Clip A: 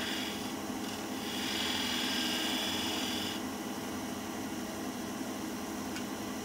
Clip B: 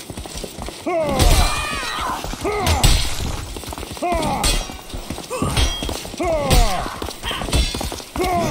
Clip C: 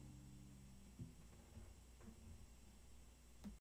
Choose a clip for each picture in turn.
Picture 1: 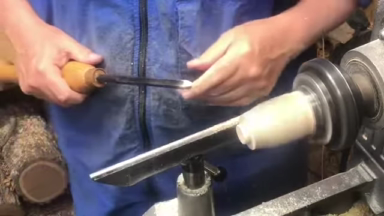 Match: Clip A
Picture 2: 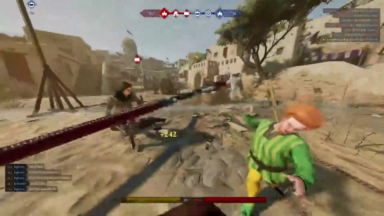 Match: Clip B